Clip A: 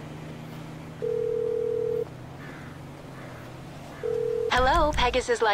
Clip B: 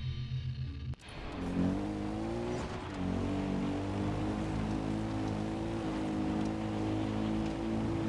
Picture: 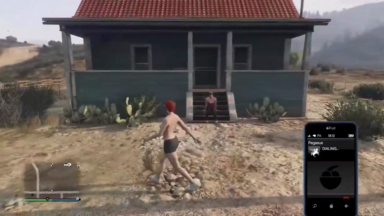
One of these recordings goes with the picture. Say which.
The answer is A